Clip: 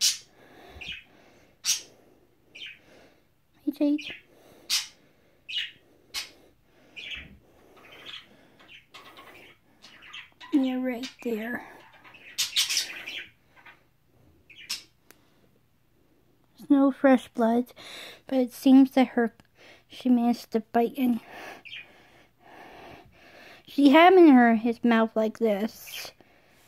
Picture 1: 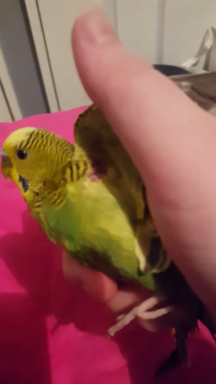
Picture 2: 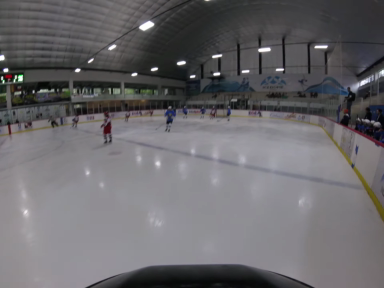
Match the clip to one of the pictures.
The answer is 1